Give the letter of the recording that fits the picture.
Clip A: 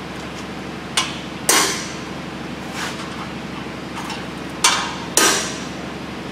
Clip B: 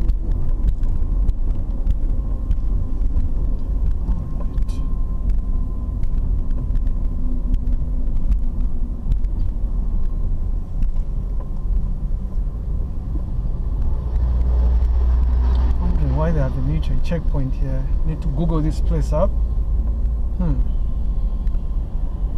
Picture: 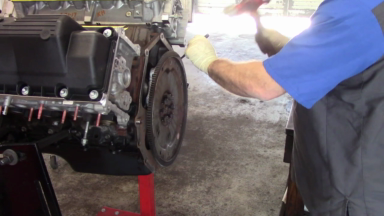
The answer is A